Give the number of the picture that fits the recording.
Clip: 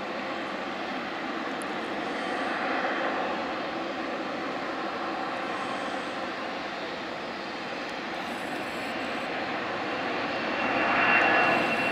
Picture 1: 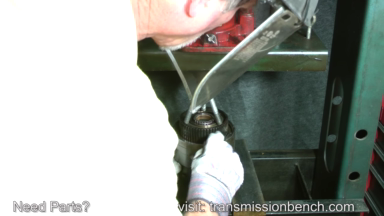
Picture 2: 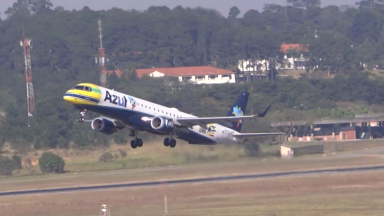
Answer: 2